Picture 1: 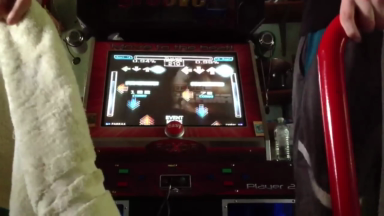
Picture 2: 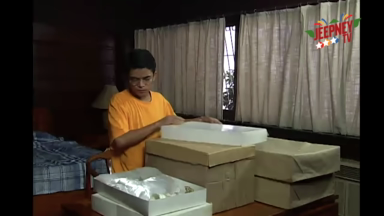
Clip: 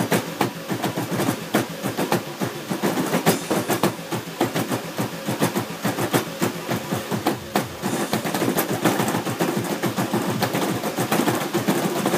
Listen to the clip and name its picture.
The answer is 1